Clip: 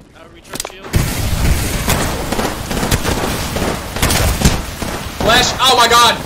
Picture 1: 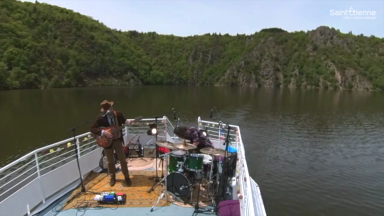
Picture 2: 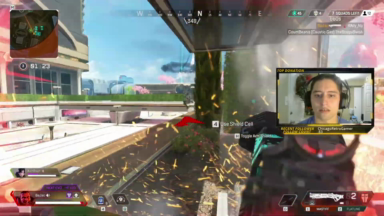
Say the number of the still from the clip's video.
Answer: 2